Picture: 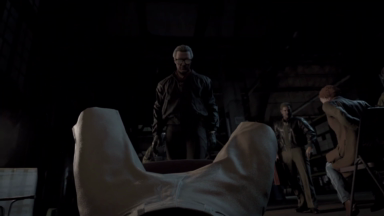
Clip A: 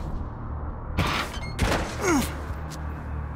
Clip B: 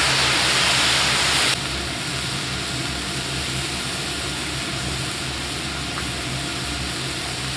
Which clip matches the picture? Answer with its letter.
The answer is A